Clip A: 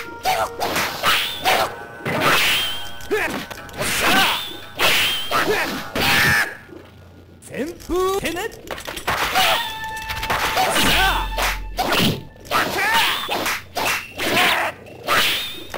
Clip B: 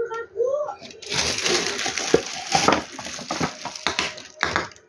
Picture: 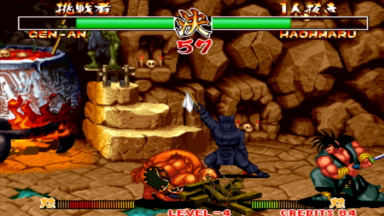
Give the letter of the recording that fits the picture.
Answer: A